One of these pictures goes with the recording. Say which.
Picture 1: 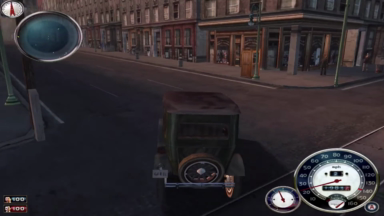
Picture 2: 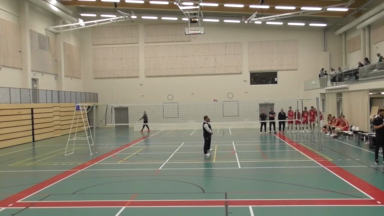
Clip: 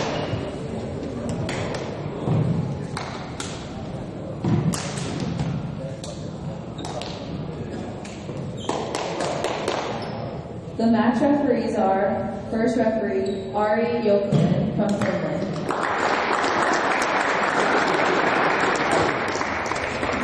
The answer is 2